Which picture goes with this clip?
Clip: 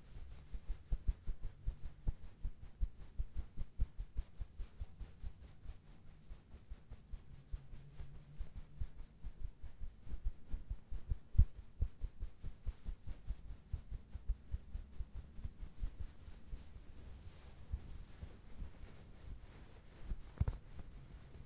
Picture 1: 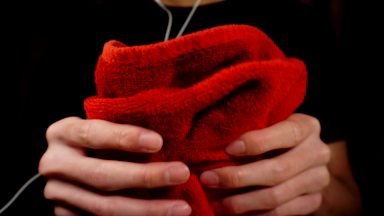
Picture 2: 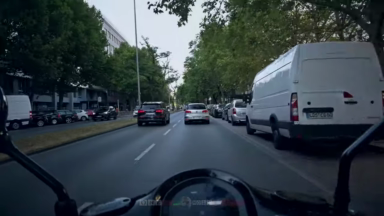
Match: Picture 1